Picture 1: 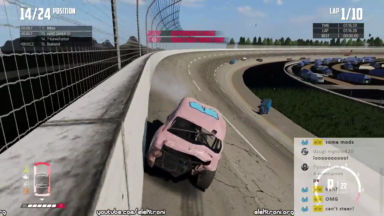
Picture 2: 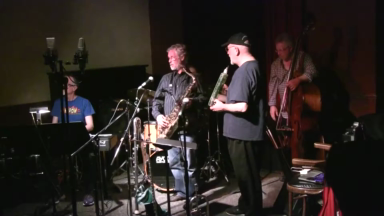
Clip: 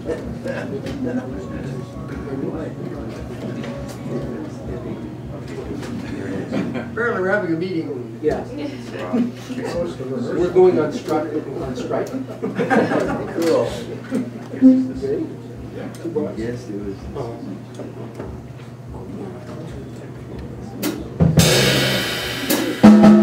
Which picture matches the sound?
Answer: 2